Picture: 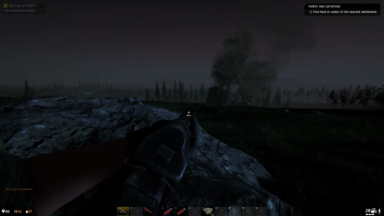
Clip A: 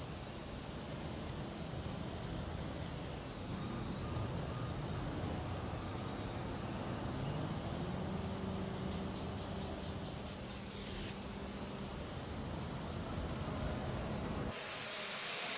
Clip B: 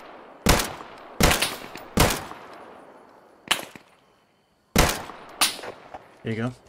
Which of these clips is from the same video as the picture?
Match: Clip B